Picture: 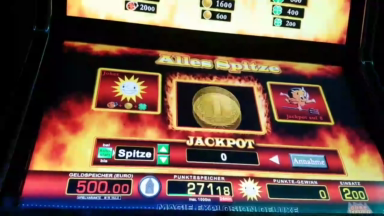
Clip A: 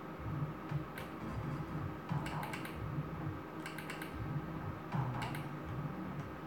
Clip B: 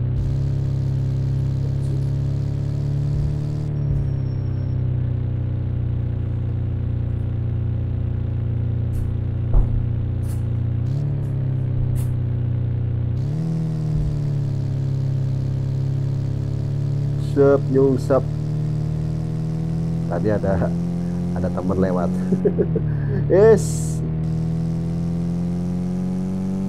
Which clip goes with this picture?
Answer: A